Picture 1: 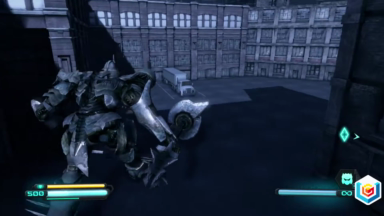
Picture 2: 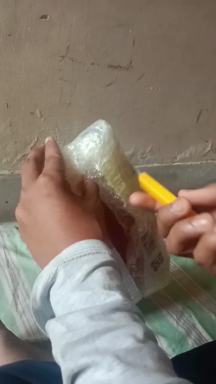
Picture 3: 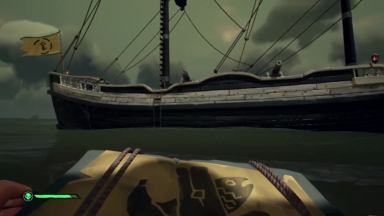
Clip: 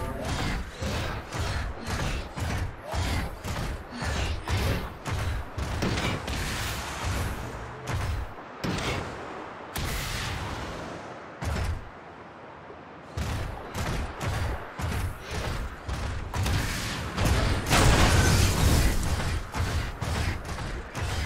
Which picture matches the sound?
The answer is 1